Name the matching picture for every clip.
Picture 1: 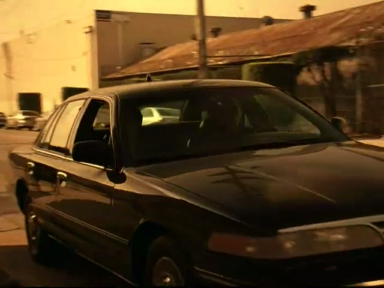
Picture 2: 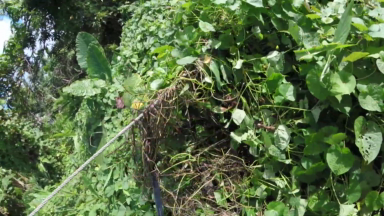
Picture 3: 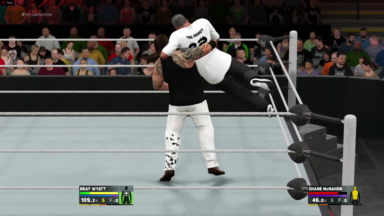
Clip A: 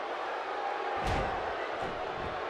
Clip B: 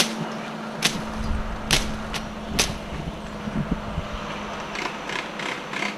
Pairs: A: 3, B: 2